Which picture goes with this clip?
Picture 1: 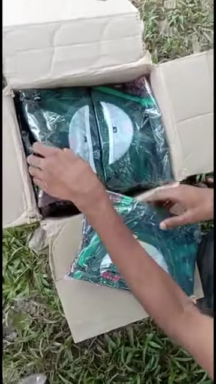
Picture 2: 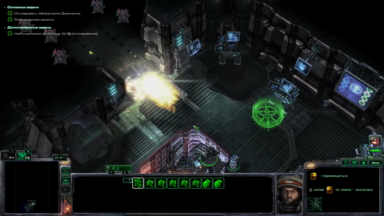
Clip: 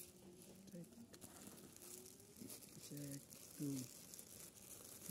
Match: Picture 1